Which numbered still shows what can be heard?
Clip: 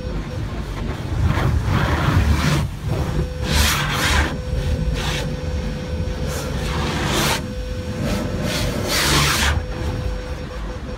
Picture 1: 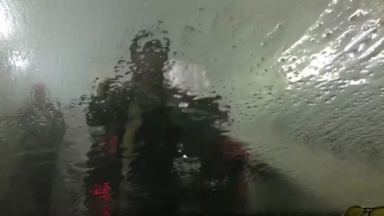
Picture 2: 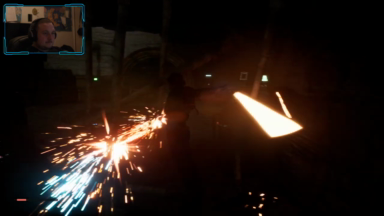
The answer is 1